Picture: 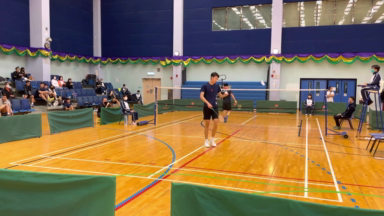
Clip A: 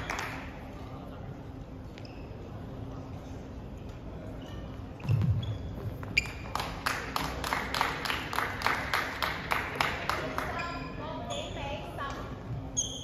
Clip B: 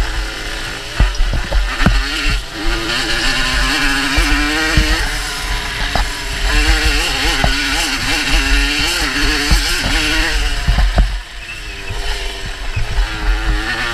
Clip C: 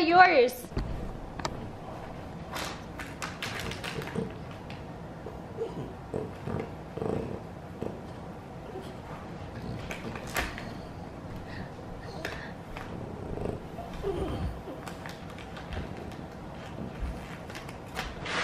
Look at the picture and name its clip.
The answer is A